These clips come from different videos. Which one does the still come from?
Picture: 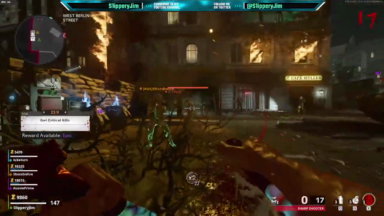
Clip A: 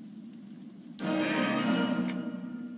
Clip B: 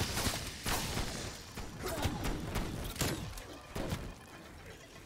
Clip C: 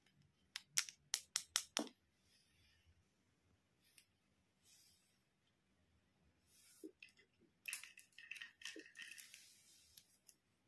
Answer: B